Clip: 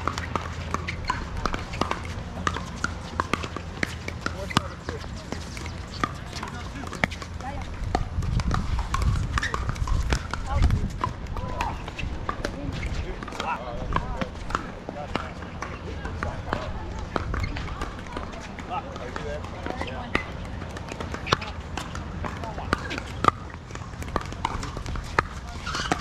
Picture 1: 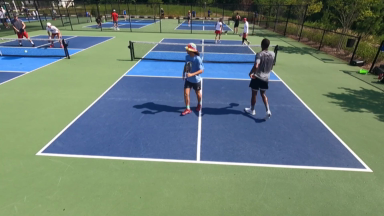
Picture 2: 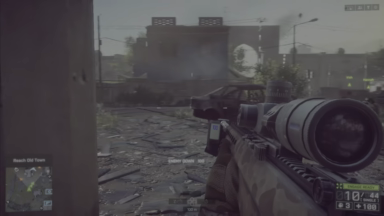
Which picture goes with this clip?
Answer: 1